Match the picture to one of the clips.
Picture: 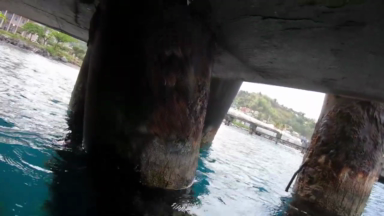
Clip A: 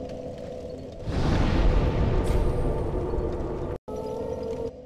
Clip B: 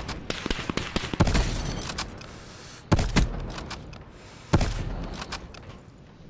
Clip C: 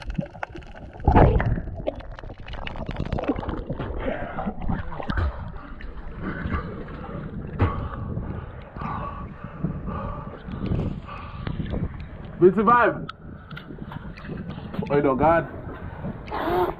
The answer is C